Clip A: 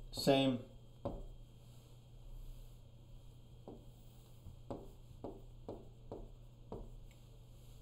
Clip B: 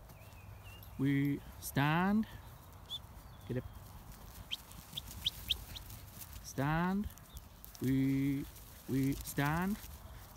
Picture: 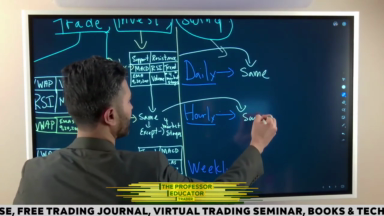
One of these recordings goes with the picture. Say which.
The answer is A